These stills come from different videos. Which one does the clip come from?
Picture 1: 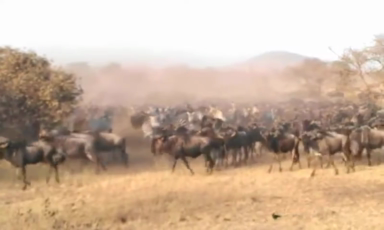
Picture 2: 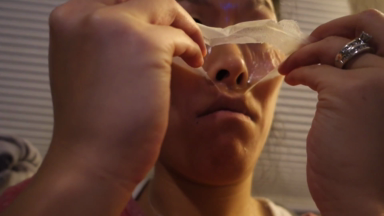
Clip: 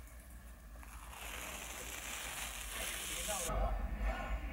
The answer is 2